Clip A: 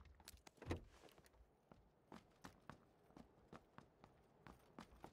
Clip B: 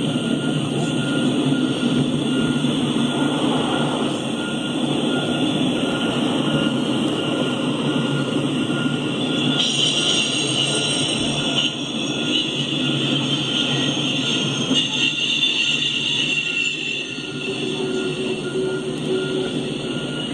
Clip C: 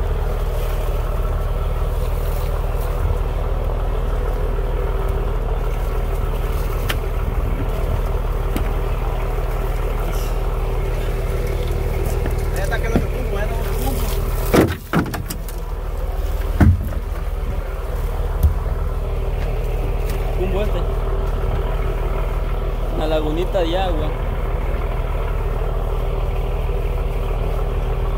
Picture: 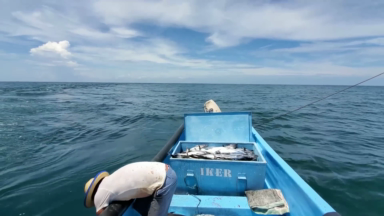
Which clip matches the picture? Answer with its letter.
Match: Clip C